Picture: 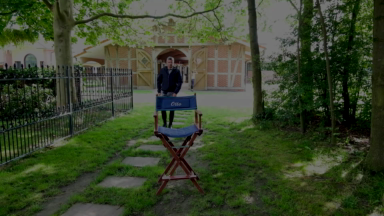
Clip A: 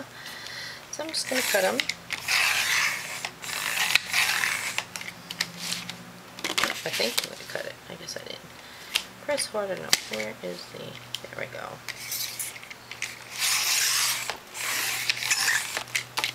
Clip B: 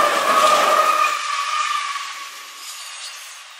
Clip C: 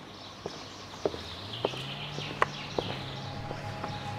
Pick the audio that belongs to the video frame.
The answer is C